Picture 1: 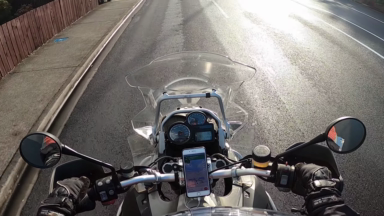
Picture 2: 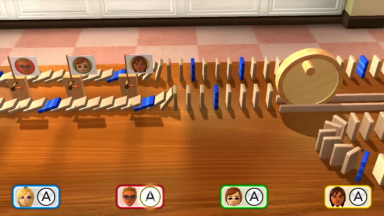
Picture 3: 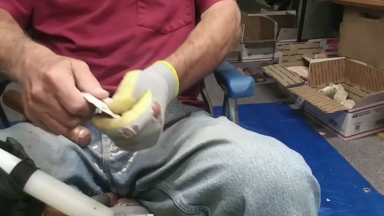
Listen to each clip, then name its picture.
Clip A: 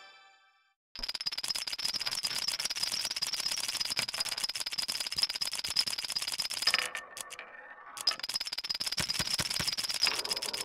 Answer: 2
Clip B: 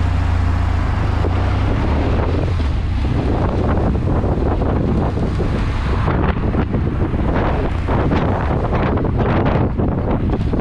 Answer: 1